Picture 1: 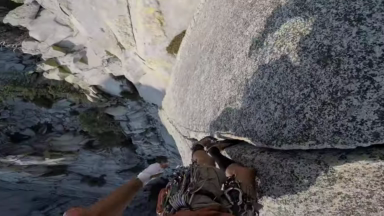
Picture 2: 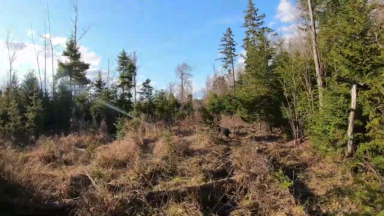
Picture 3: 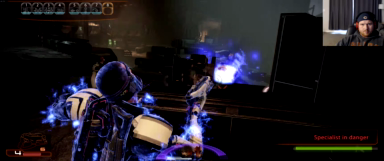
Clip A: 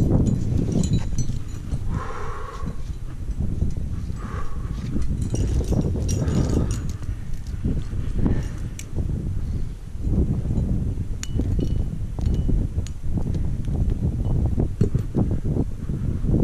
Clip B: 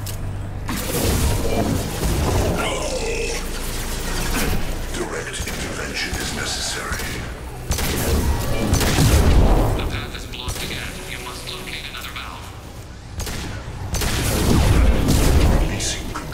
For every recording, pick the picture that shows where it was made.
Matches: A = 1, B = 3